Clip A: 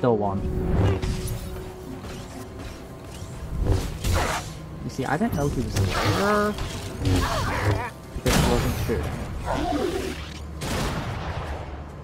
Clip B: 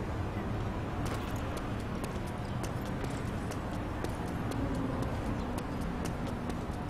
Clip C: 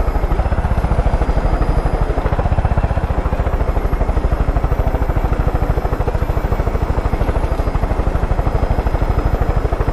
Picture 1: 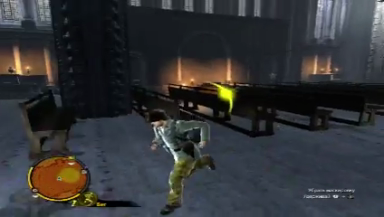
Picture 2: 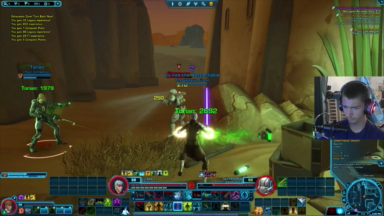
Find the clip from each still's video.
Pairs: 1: B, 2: A